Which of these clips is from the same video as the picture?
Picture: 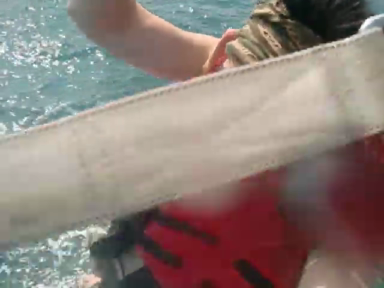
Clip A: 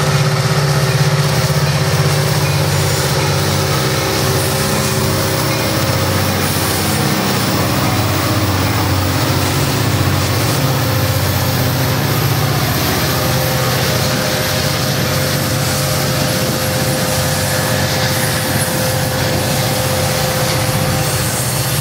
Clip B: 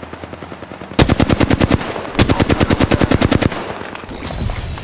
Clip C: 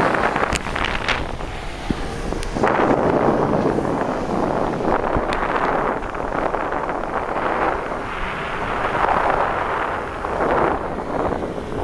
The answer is C